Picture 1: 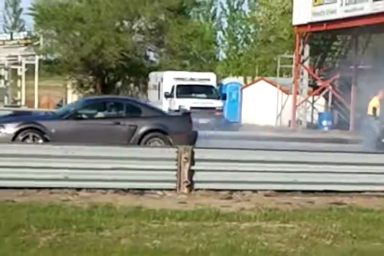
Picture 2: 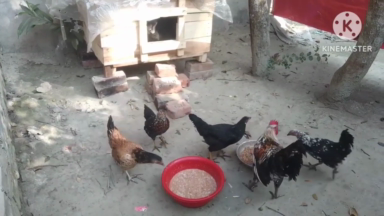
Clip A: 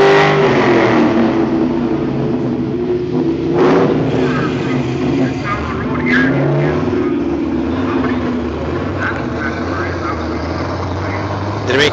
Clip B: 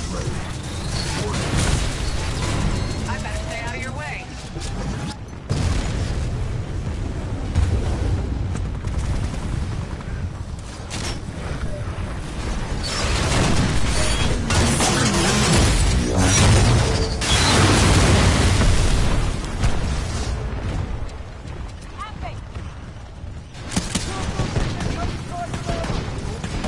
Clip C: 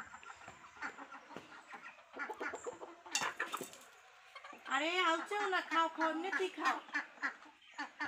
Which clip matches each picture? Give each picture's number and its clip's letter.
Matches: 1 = A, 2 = C